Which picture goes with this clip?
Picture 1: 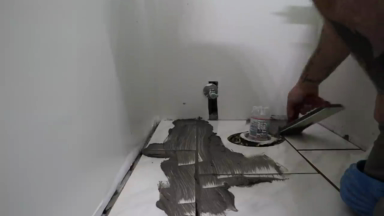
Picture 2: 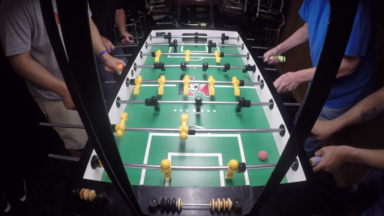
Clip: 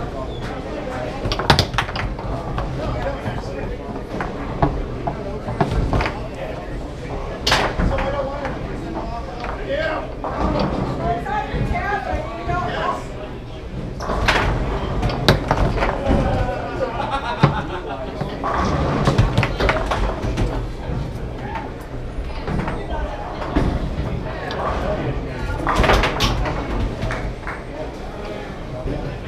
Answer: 2